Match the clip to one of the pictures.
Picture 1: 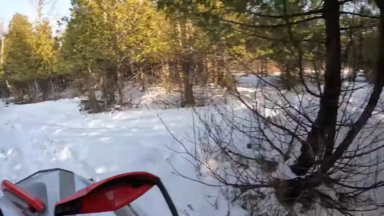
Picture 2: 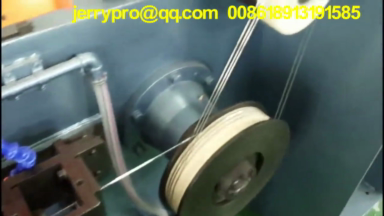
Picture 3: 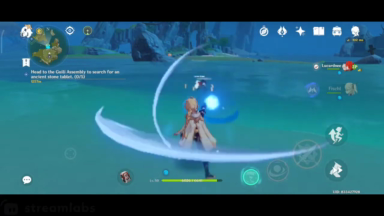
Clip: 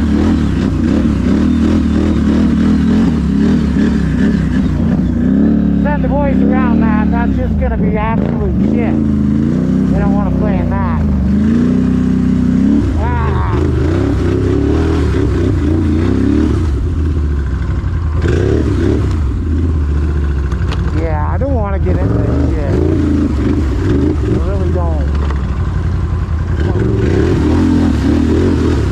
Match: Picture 1